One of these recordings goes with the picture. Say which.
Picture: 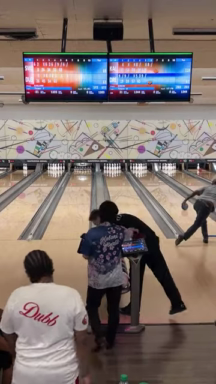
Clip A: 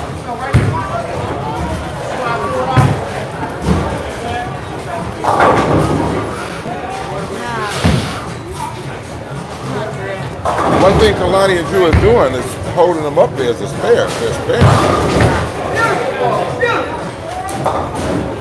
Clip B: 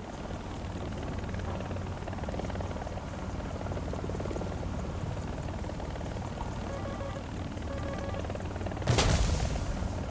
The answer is A